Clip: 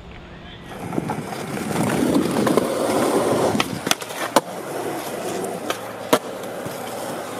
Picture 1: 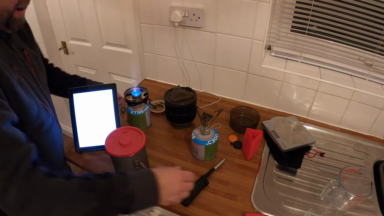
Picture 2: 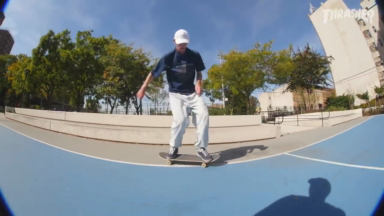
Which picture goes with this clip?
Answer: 2